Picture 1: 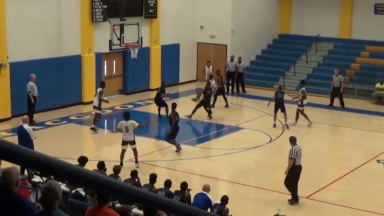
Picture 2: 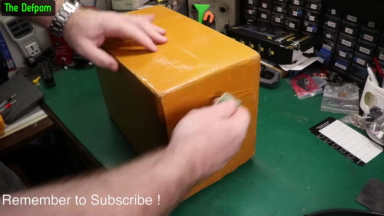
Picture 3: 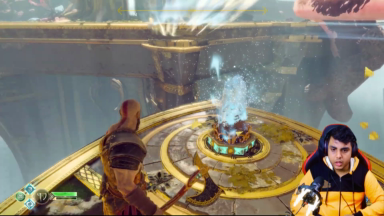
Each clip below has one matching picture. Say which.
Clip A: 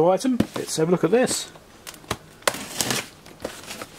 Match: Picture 2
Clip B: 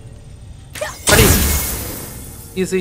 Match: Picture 3